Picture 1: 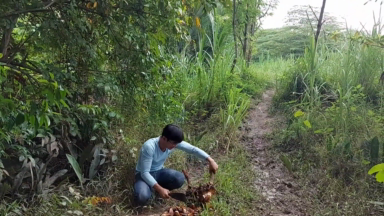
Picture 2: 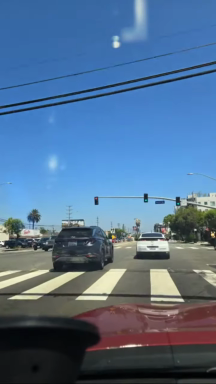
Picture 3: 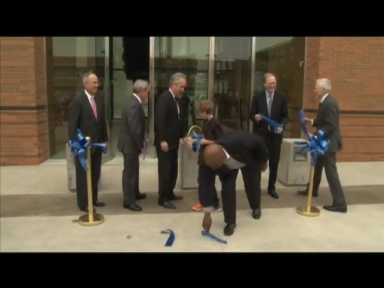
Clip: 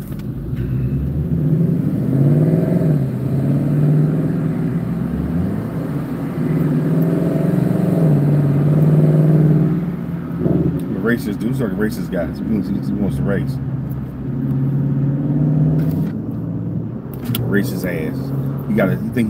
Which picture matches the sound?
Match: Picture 2